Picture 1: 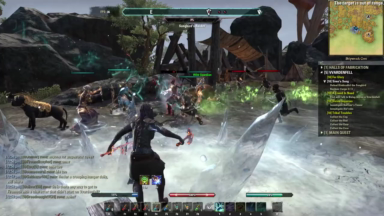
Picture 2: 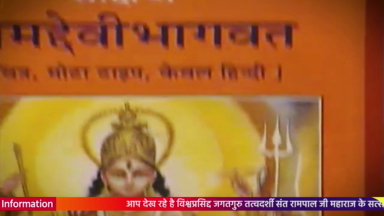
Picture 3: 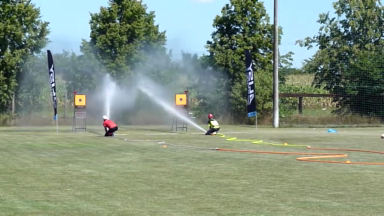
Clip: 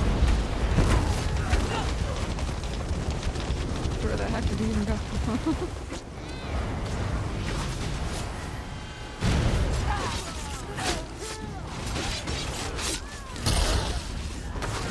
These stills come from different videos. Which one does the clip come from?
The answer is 1